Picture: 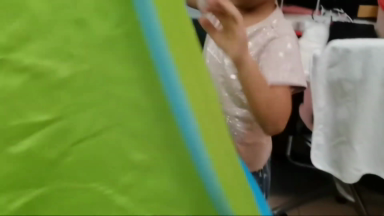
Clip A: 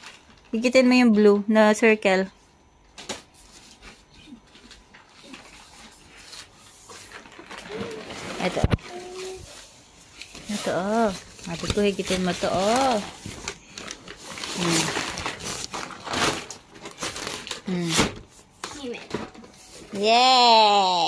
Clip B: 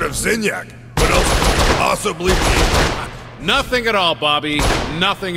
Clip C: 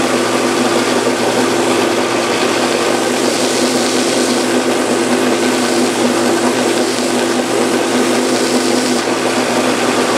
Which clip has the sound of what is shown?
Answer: A